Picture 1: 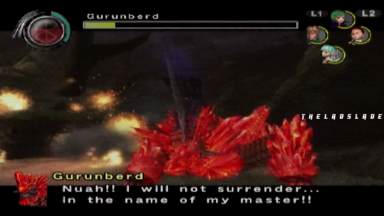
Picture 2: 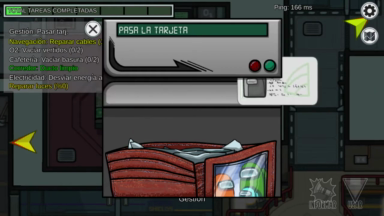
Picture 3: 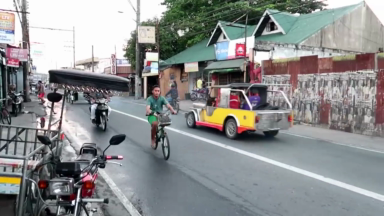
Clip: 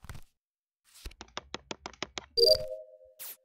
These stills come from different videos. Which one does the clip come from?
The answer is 2